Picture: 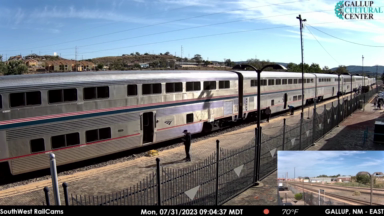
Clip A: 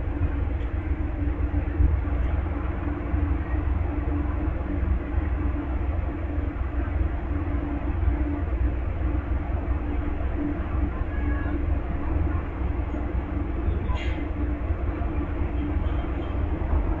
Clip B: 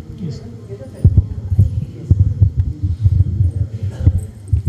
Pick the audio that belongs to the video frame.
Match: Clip A